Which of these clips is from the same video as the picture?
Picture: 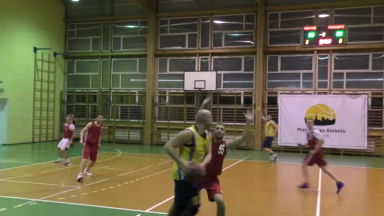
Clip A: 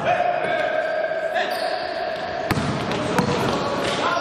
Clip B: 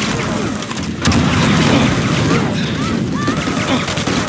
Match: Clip A